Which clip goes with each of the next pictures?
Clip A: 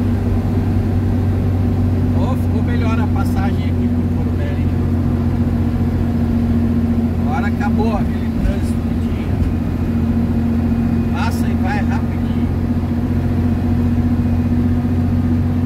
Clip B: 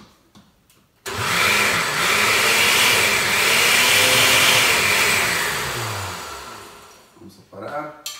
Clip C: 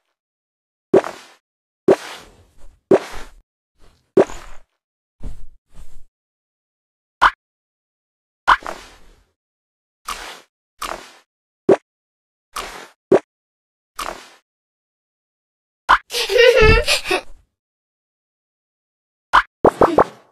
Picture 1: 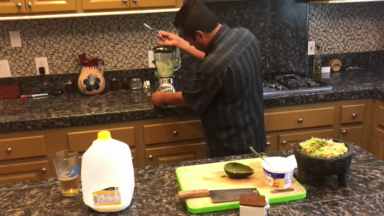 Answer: B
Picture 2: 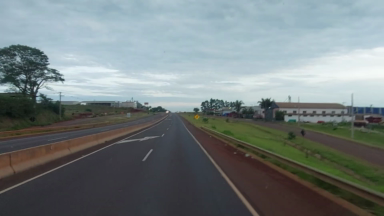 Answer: A